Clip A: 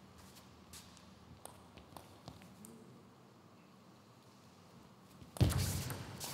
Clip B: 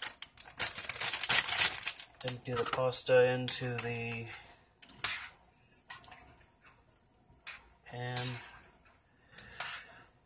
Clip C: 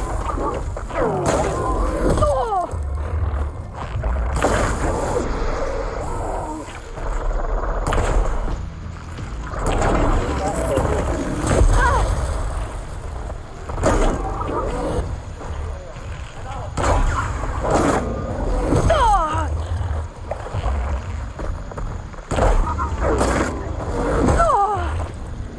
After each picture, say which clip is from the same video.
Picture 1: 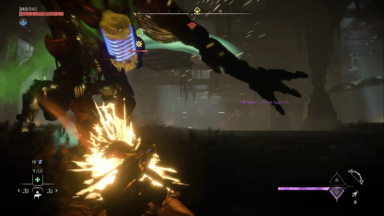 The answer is C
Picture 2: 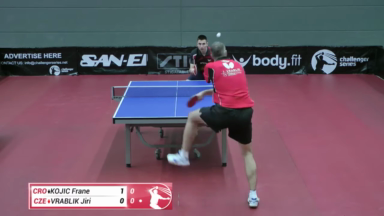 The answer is A